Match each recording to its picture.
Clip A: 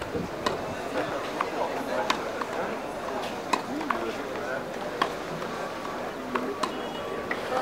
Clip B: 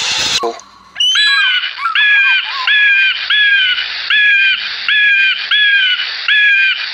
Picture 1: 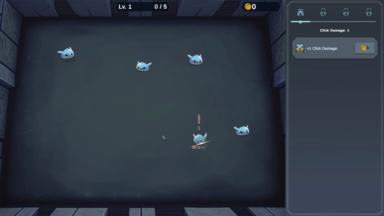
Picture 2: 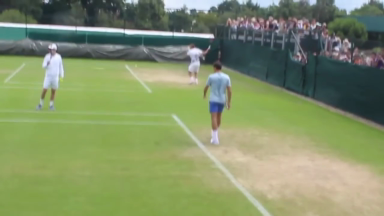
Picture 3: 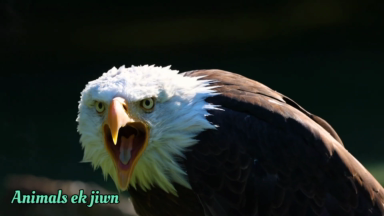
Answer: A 2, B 3